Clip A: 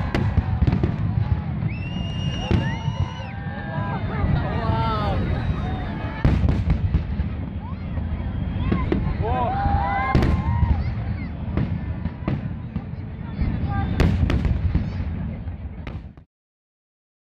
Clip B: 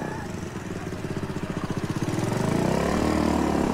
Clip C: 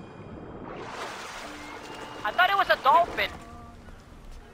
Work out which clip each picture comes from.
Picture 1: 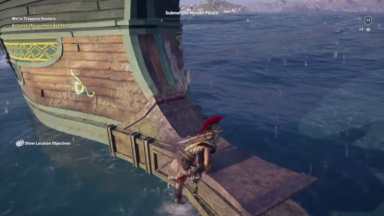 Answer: C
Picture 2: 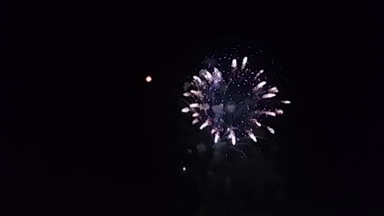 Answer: A